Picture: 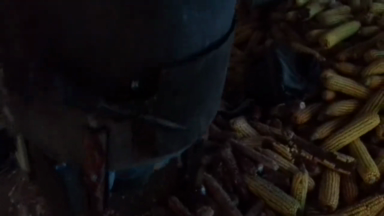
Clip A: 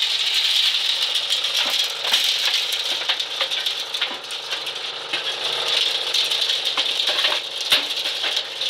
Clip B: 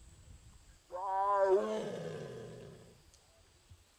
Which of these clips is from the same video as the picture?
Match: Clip A